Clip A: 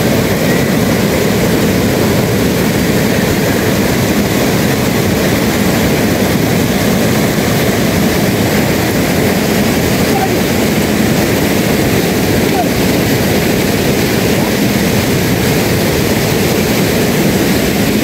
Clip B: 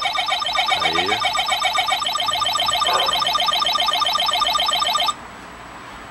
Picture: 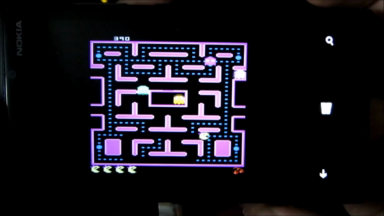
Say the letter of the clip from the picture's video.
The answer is B